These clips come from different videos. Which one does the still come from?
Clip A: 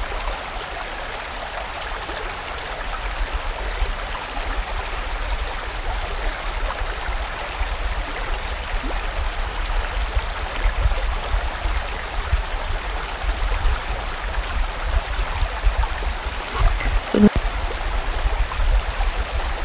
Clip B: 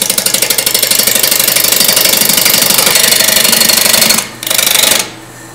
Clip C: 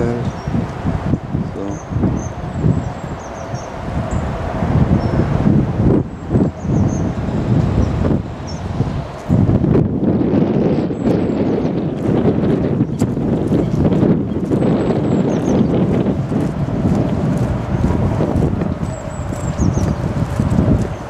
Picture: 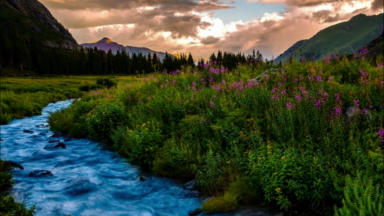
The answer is A